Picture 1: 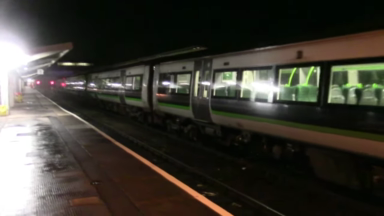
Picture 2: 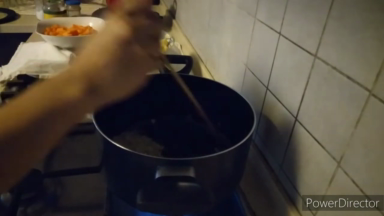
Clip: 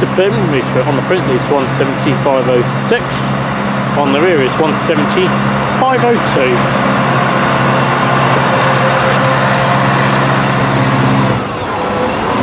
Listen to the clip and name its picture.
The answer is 1